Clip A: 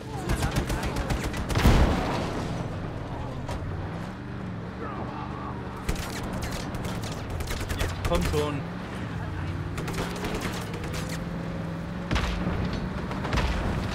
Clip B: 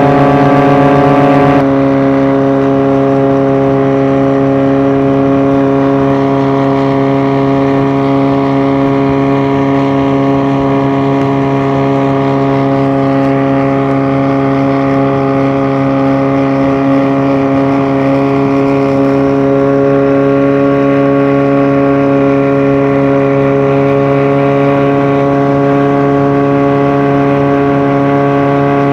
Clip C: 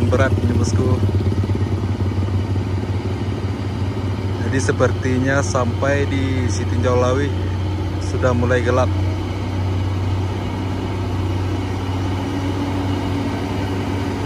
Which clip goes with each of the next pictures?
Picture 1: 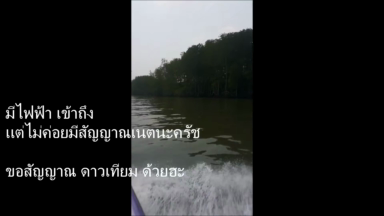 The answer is B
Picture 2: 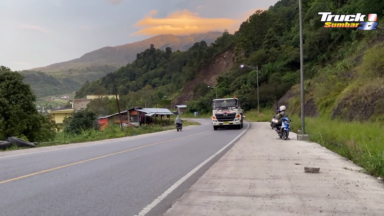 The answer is C